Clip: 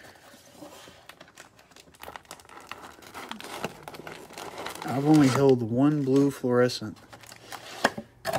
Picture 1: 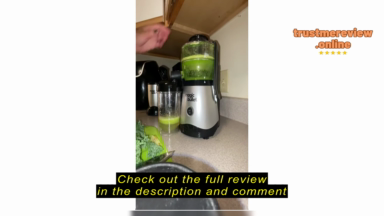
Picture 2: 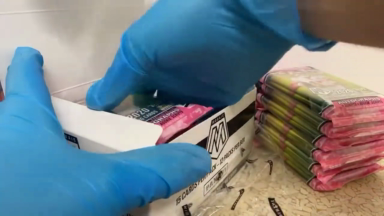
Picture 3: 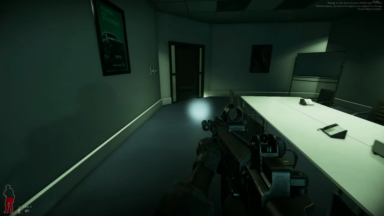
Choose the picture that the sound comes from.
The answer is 2